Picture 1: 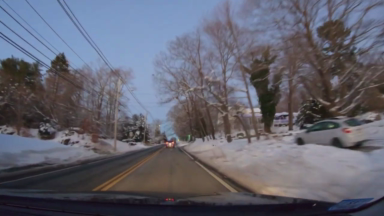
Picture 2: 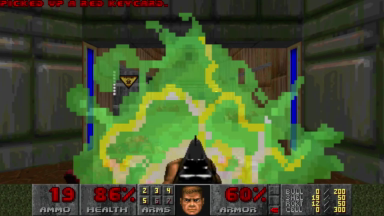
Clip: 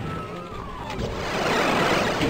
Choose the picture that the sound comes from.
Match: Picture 2